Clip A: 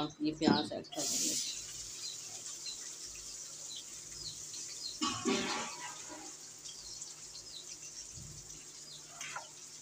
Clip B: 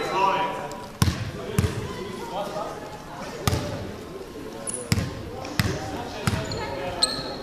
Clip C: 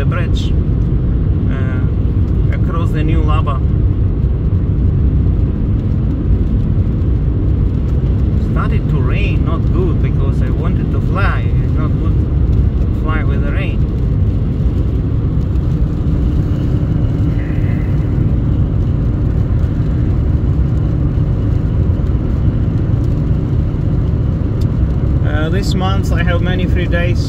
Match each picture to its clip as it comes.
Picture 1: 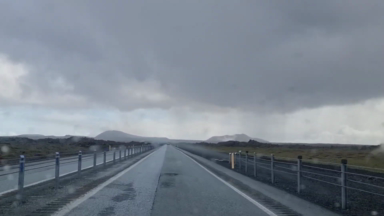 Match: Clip C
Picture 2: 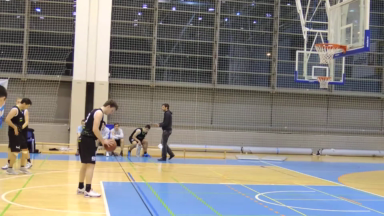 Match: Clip B